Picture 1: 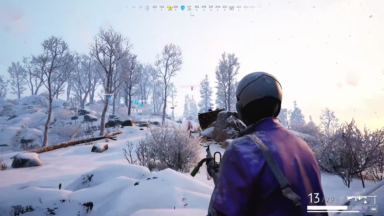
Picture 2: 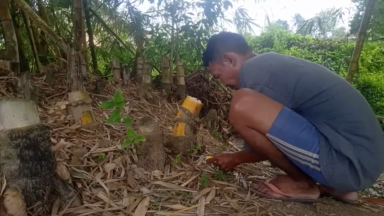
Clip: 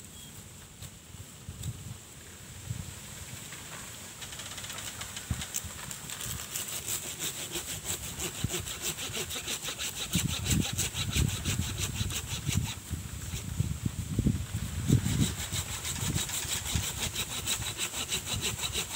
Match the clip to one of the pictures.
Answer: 2